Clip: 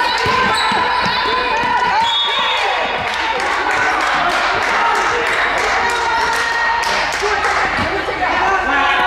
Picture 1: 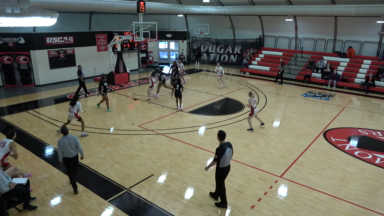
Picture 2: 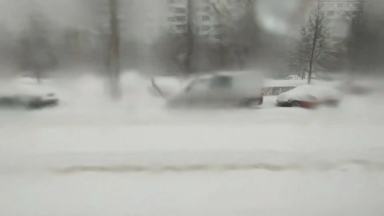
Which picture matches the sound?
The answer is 1